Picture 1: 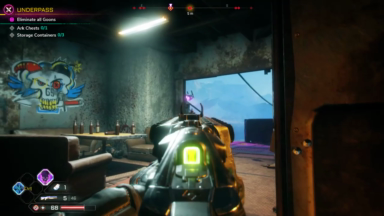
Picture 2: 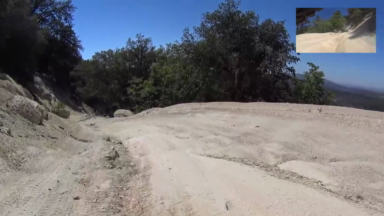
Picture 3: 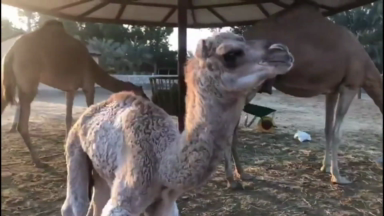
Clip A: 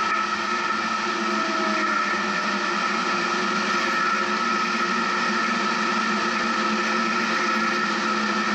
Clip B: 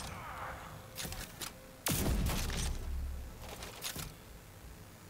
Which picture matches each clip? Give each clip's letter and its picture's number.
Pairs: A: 2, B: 1